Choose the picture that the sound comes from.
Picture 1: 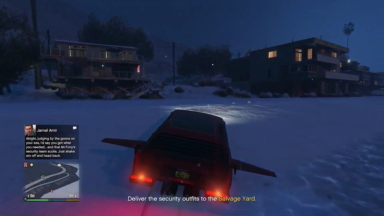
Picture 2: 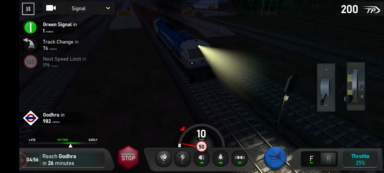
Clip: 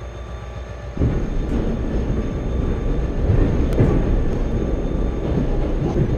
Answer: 2